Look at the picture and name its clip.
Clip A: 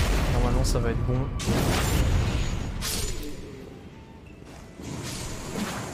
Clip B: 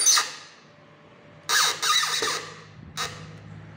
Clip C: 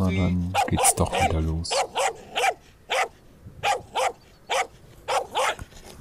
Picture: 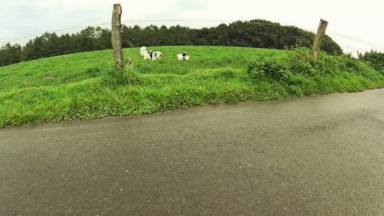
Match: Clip C